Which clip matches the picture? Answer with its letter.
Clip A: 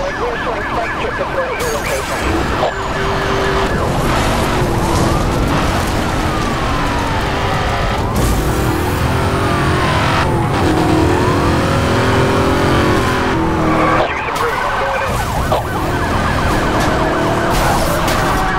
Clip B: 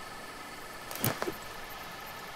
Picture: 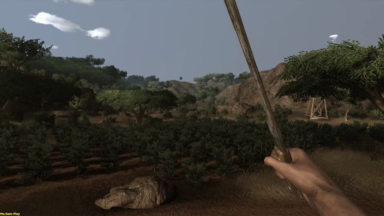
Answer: B